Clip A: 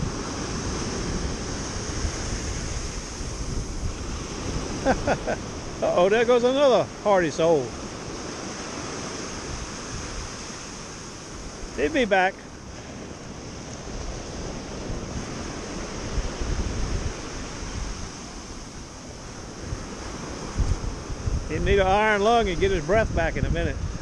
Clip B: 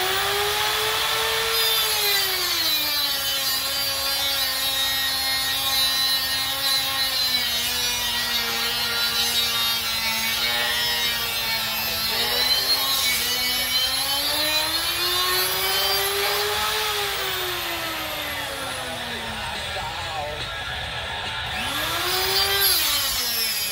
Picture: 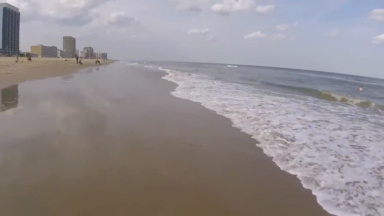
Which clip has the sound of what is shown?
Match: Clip A